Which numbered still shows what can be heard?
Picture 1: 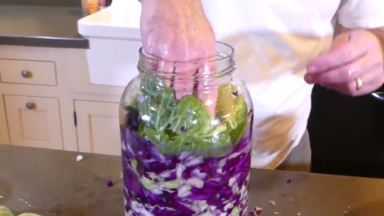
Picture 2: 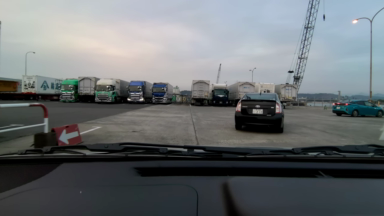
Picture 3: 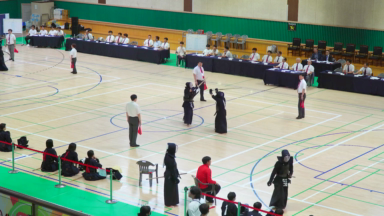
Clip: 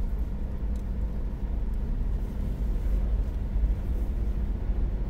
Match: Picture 2